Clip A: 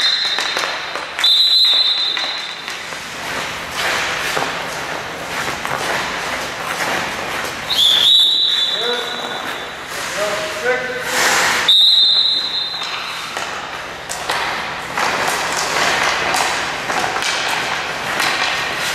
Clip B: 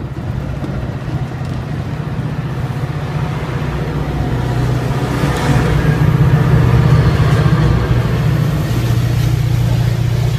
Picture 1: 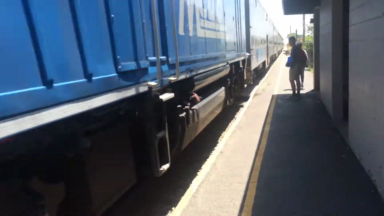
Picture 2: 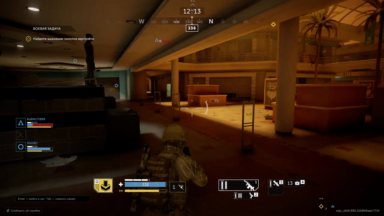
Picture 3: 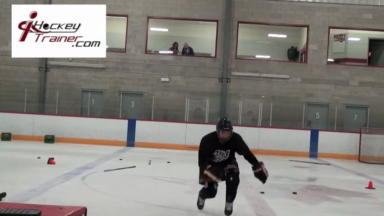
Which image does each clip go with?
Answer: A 3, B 1